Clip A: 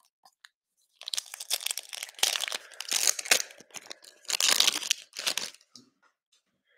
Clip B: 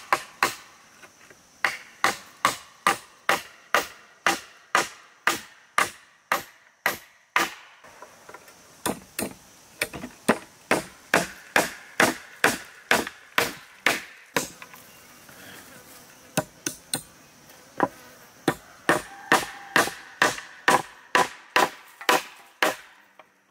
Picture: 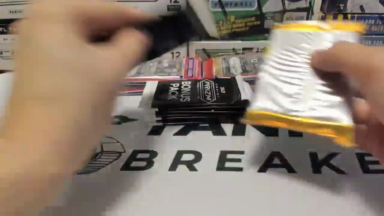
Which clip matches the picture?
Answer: A